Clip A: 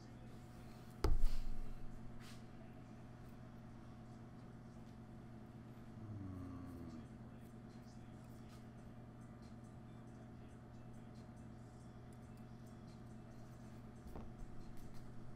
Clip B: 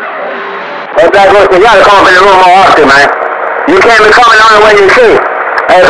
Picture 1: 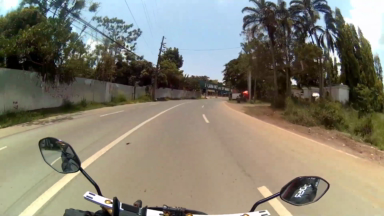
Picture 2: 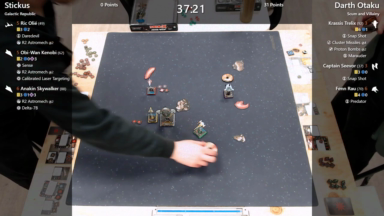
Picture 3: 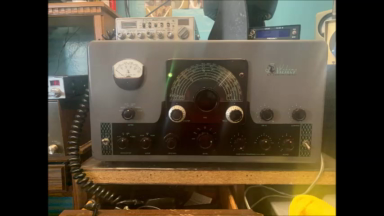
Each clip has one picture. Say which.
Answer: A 2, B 3